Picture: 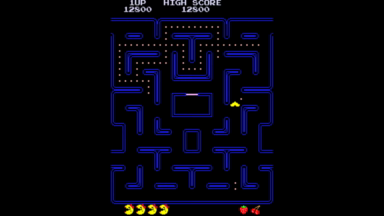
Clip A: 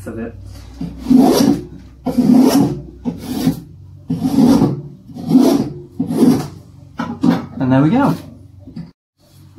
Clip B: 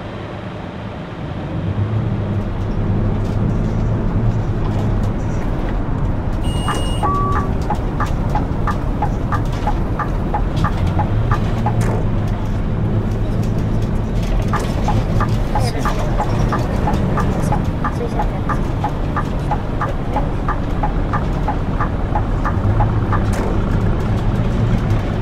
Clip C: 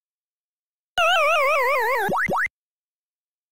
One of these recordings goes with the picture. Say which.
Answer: C